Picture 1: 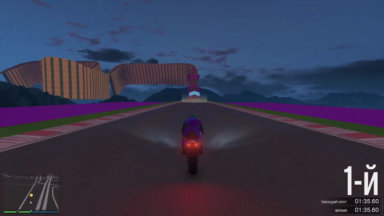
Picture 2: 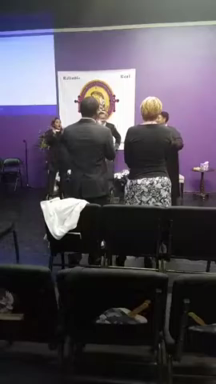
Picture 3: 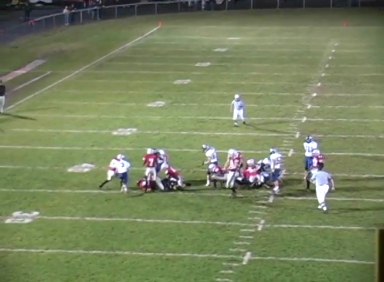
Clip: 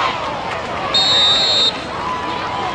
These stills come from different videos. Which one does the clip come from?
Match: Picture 3